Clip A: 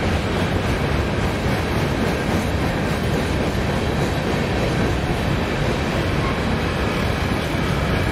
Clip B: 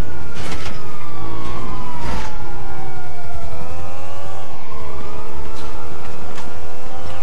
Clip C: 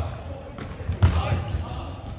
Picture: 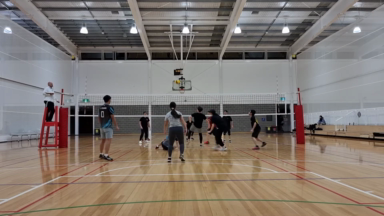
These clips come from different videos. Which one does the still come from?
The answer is C